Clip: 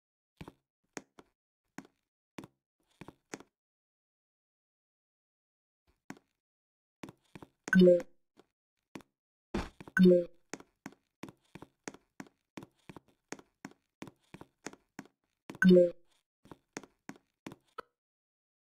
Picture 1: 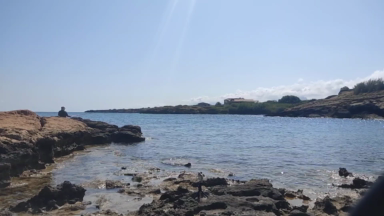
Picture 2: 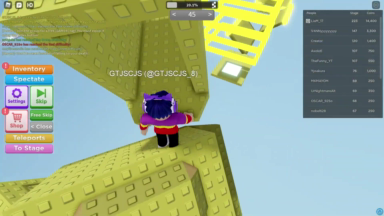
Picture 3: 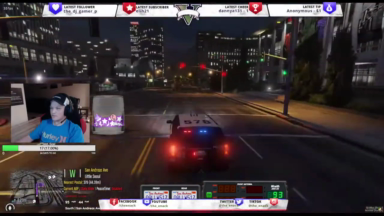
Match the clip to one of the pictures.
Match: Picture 2